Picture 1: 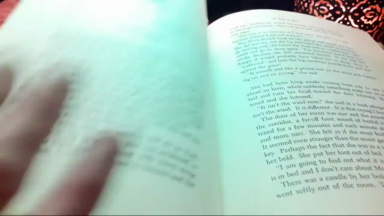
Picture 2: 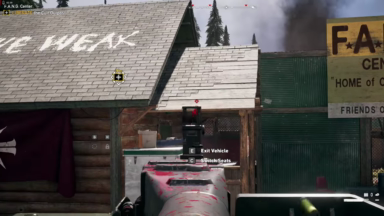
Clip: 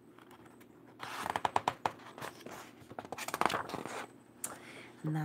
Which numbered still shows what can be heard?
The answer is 1